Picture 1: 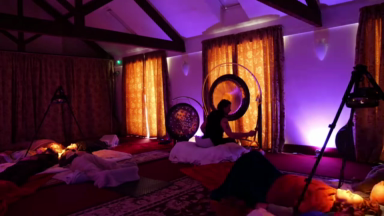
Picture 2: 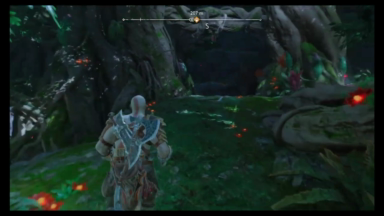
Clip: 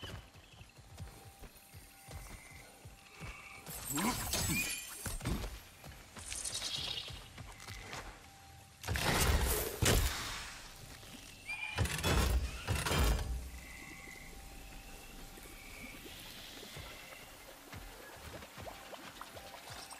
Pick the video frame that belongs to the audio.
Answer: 2